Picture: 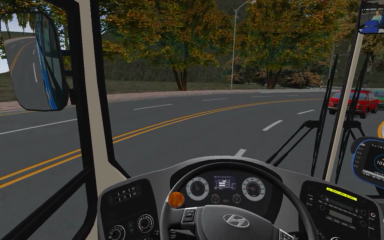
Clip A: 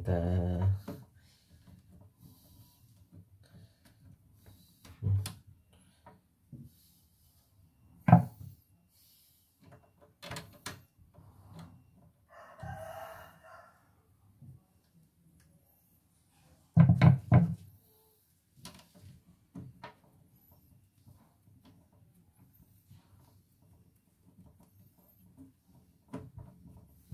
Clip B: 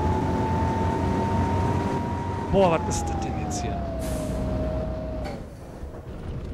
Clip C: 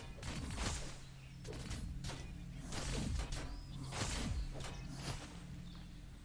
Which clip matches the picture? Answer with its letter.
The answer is B